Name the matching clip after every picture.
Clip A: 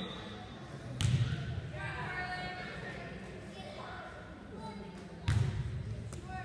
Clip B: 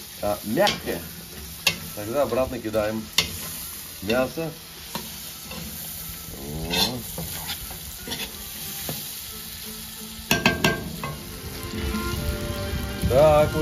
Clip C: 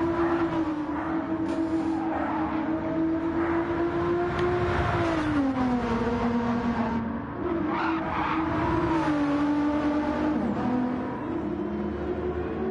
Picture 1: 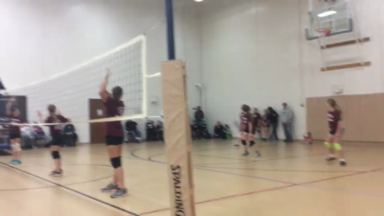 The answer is A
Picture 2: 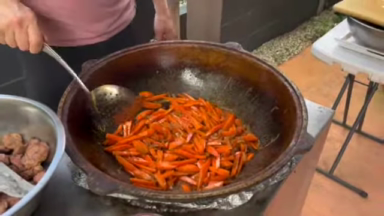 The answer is B